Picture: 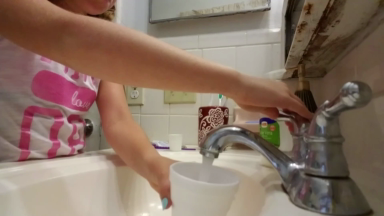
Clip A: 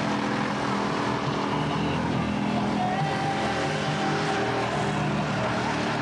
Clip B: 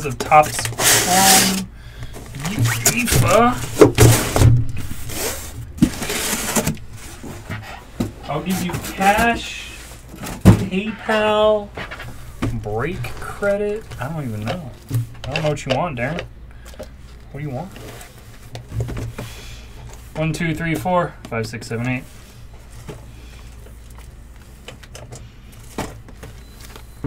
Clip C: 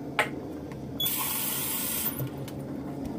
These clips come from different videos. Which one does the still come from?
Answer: C